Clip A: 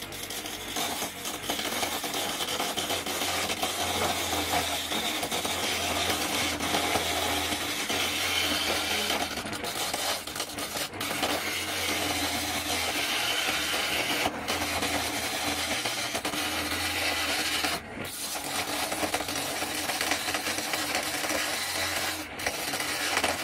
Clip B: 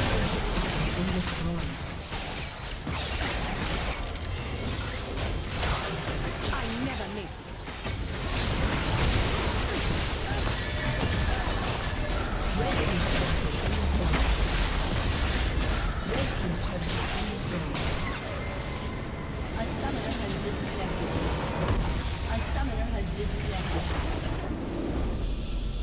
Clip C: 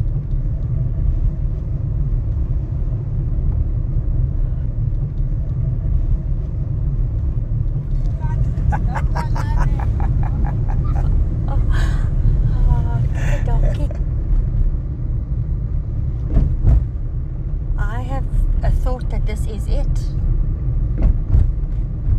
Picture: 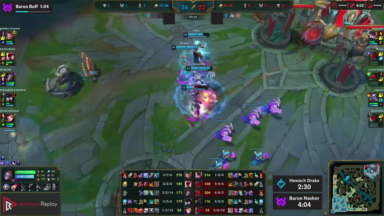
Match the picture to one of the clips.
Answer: B